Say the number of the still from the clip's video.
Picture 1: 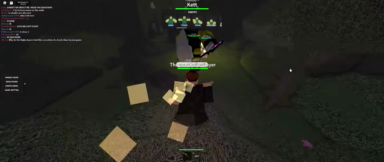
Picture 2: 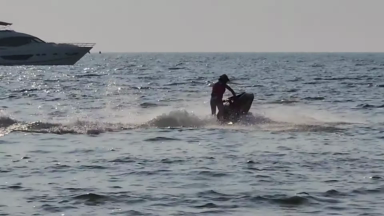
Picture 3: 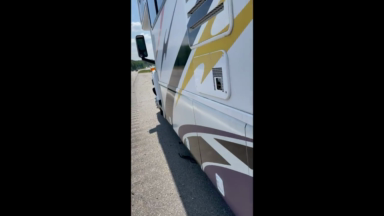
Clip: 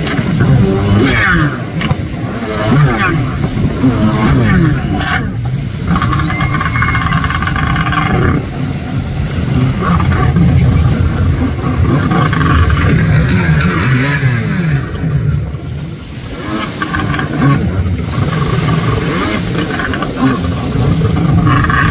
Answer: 2